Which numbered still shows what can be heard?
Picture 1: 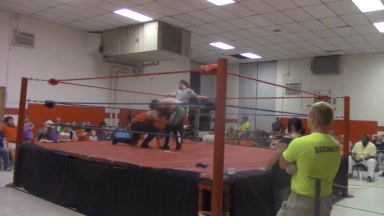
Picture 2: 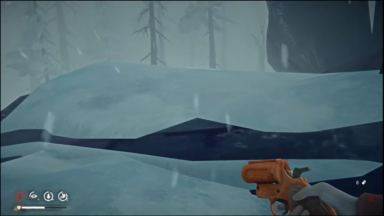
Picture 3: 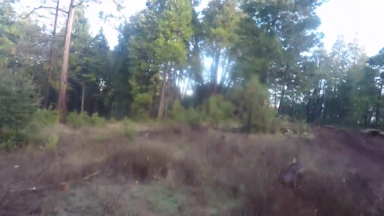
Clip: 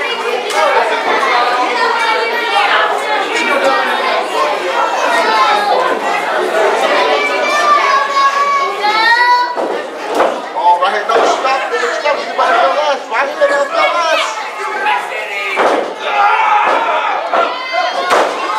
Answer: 1